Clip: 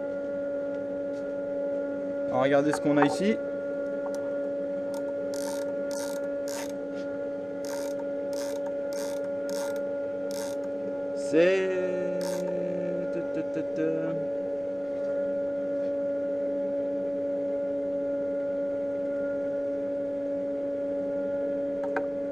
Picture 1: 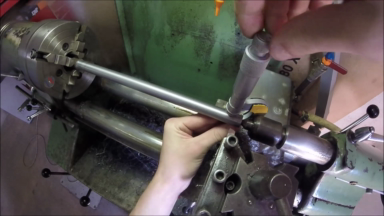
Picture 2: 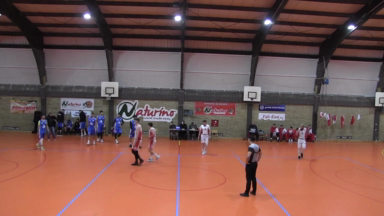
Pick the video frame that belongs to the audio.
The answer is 1